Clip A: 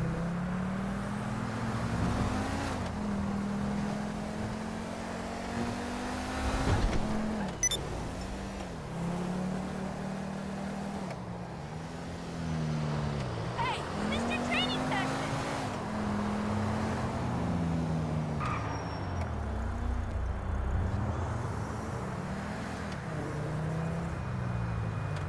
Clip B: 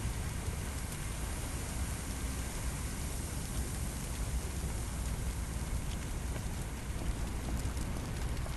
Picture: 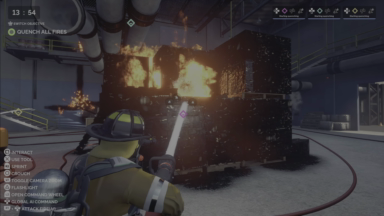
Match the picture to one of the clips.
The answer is B